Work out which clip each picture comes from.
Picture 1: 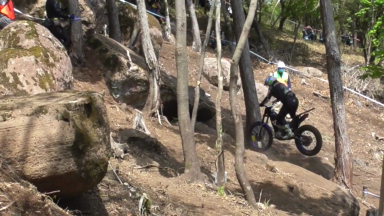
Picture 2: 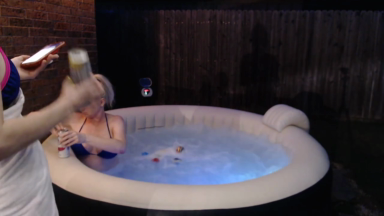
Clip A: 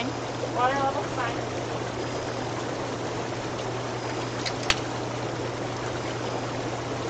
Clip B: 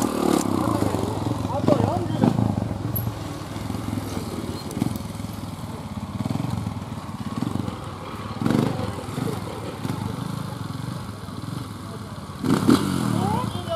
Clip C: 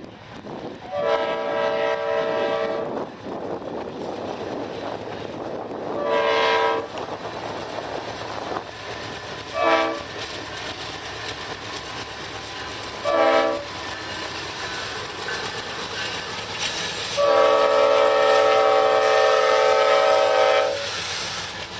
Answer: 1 B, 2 A